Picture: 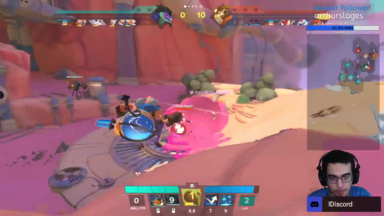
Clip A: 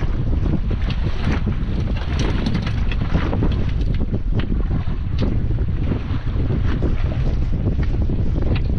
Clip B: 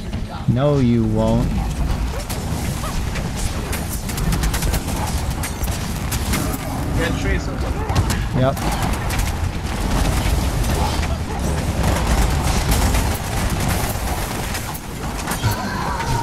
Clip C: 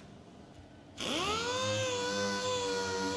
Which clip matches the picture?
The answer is B